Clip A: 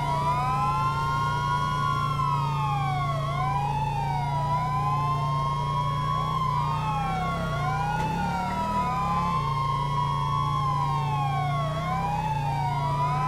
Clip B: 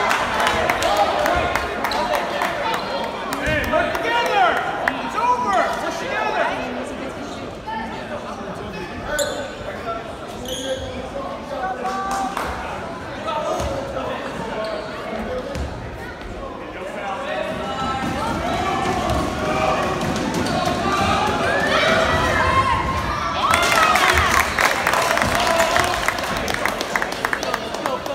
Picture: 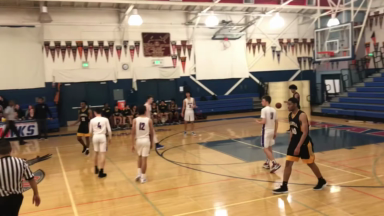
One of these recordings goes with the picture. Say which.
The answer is B